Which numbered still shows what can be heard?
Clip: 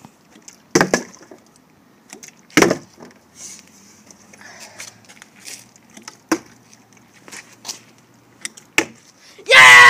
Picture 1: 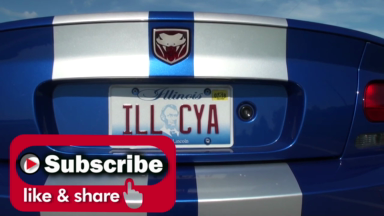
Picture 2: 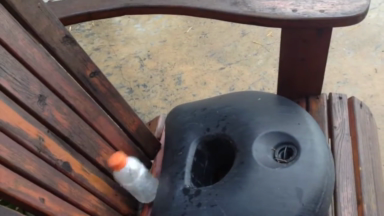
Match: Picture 2